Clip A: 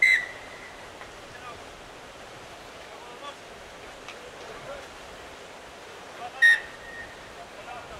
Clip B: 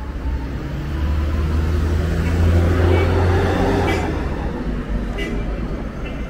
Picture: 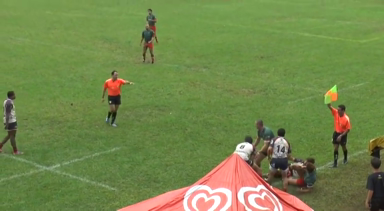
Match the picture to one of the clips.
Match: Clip A